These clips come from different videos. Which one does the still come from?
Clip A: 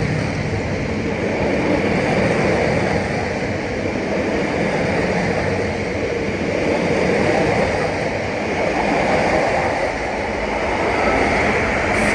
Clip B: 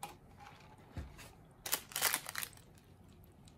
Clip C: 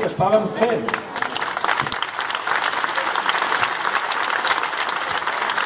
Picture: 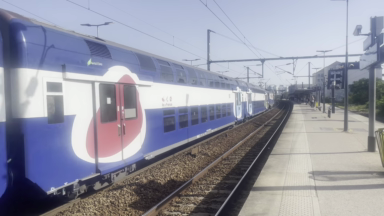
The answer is A